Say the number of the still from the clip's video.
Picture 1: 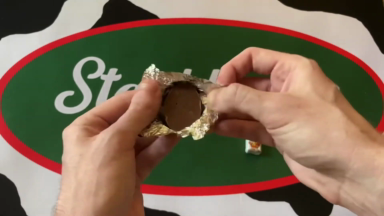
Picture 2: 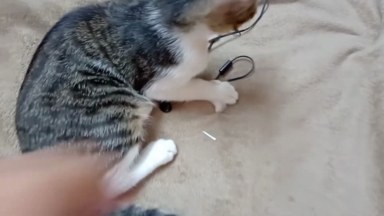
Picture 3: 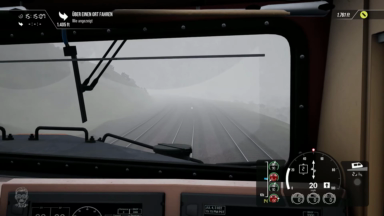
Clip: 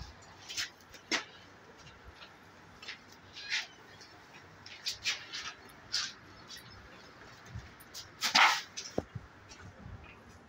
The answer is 2